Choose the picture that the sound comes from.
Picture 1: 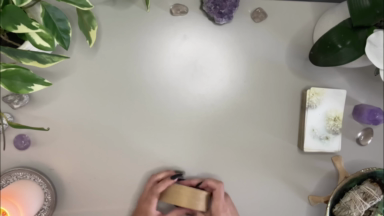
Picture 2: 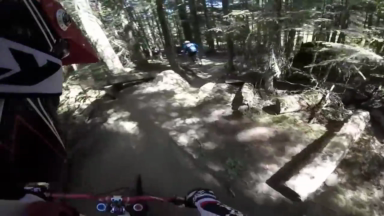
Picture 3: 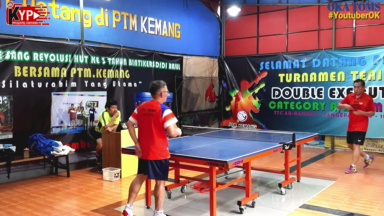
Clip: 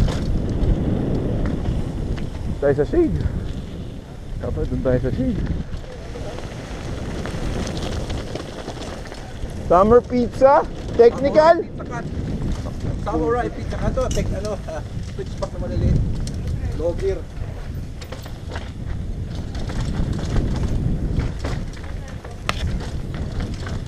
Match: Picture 2